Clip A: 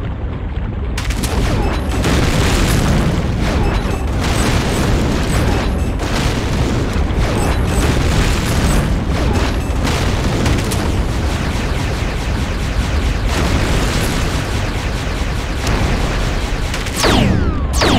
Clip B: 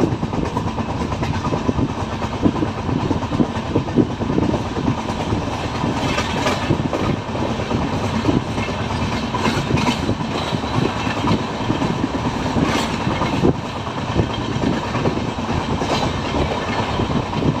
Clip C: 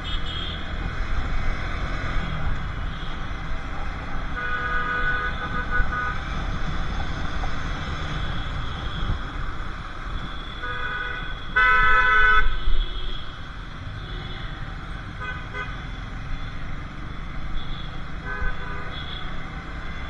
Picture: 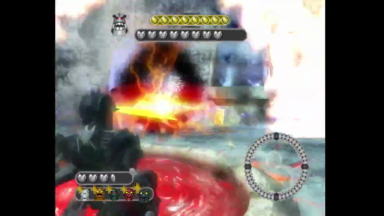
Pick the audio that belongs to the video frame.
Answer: A